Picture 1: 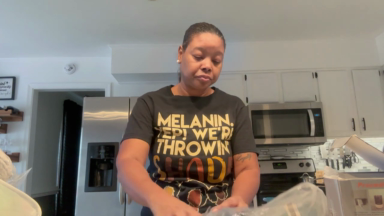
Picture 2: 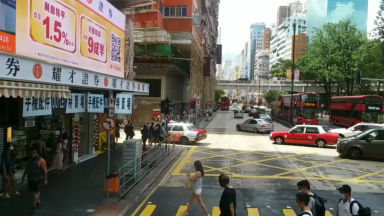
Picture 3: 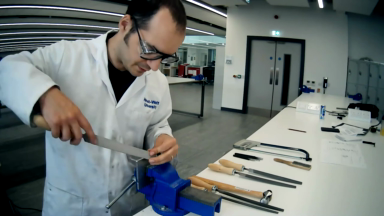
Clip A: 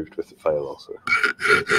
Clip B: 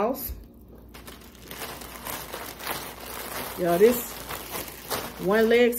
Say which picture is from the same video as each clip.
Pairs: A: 3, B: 1